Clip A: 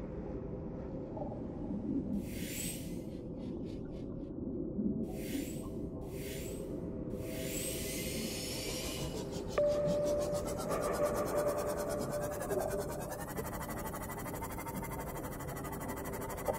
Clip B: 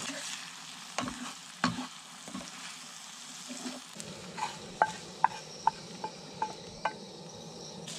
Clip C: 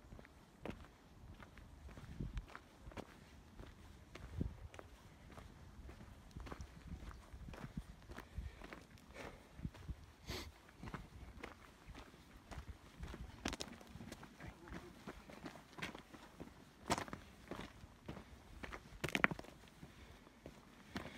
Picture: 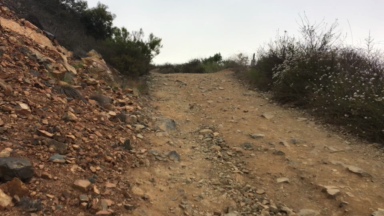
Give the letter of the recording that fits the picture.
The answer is C